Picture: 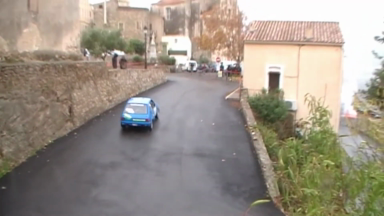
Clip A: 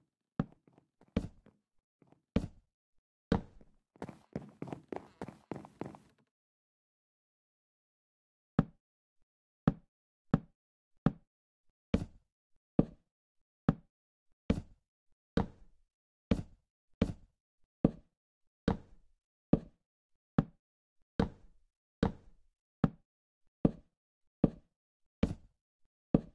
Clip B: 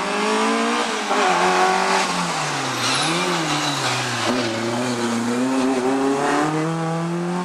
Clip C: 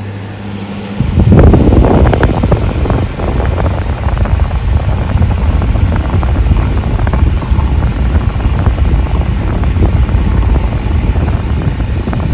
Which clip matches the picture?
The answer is B